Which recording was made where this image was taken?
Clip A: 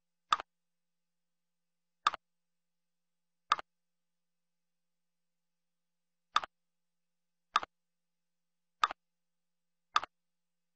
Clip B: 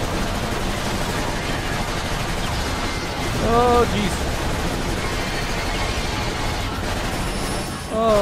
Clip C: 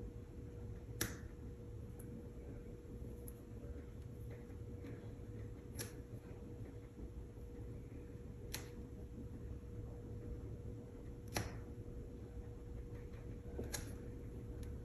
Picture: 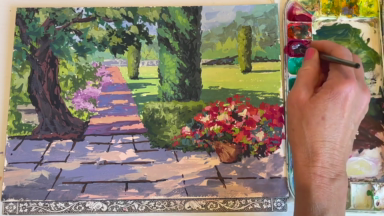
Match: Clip C